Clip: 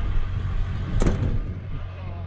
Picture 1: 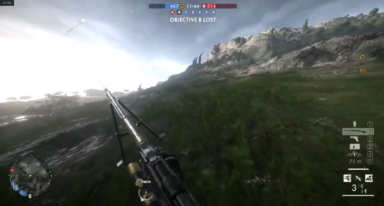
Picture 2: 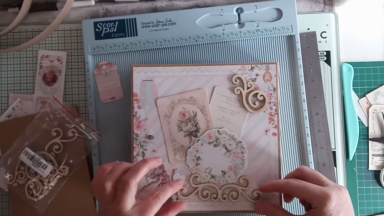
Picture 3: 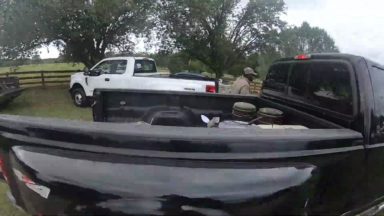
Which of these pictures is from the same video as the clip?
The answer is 3